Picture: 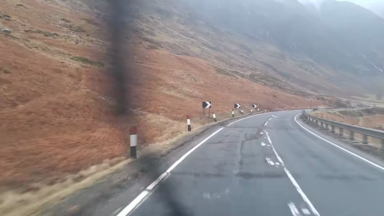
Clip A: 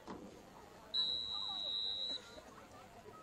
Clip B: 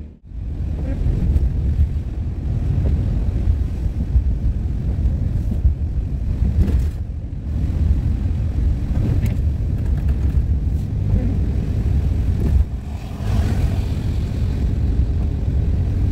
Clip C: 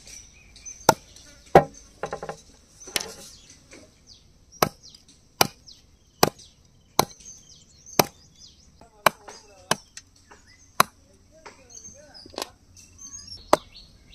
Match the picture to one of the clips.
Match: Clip B